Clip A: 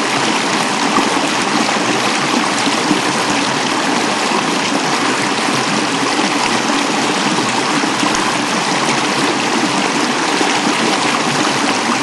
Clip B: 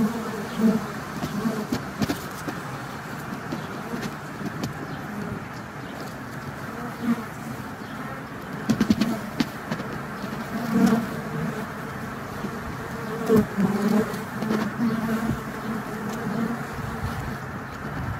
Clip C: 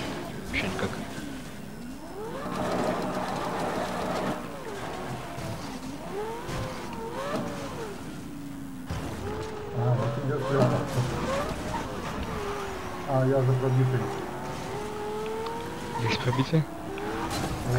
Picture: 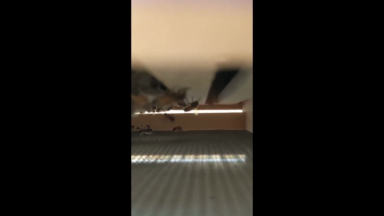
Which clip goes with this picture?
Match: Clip B